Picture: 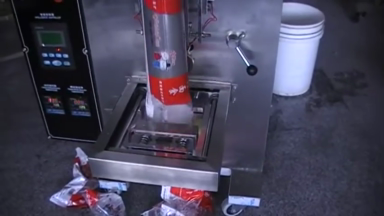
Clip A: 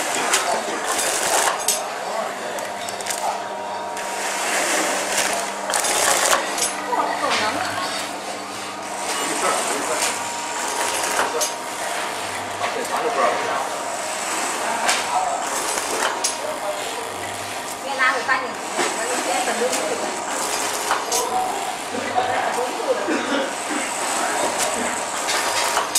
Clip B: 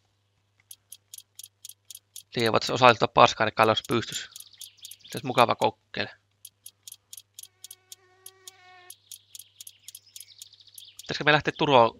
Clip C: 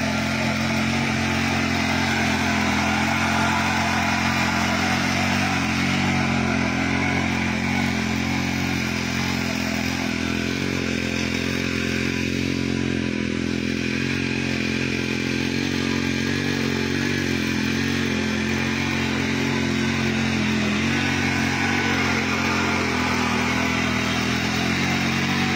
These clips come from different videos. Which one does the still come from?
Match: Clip A